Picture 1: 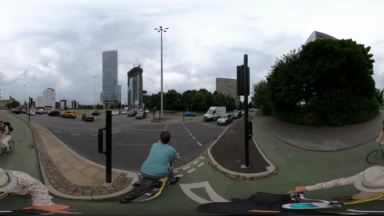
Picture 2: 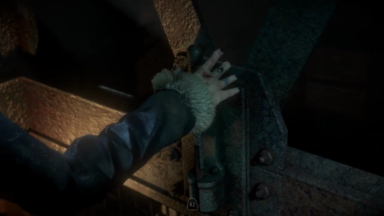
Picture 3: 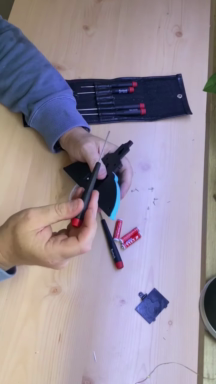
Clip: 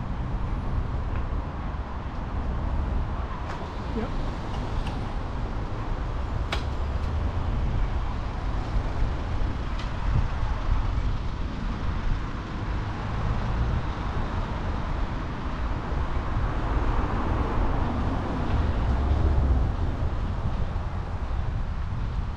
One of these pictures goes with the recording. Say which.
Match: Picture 1